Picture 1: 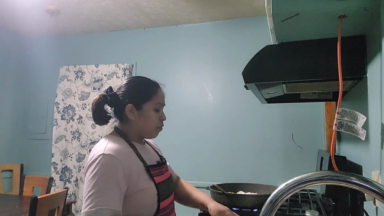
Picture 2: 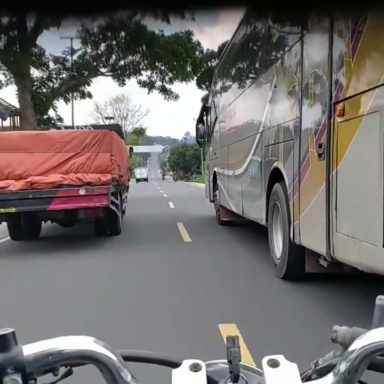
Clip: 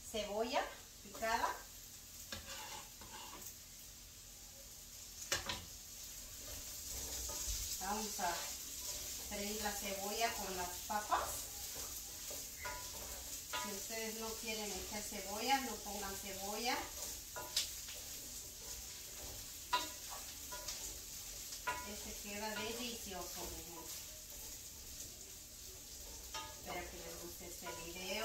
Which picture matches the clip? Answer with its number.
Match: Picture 1